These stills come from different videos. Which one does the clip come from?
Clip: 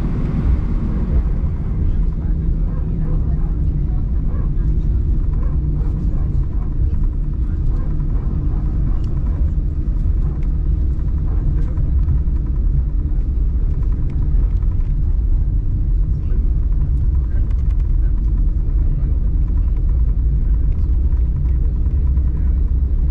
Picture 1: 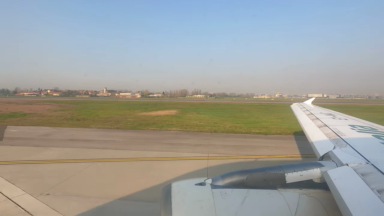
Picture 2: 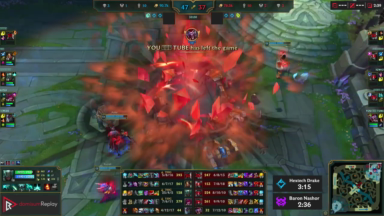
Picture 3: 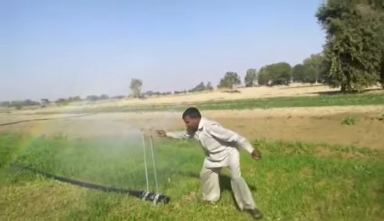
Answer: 1